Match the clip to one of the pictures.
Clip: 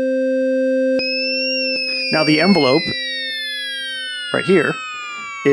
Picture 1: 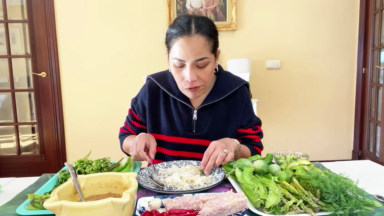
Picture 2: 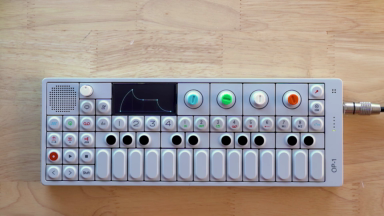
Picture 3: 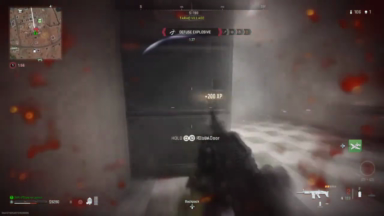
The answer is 2